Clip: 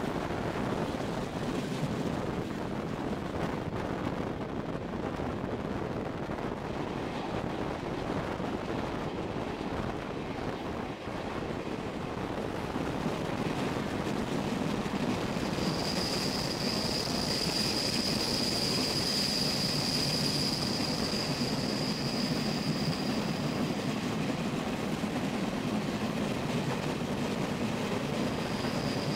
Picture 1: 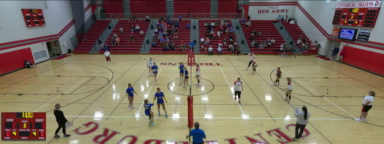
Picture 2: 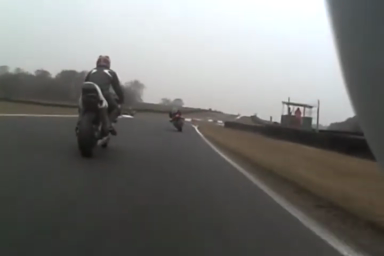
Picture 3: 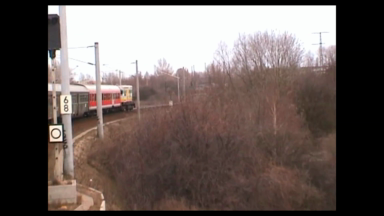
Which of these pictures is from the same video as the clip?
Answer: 3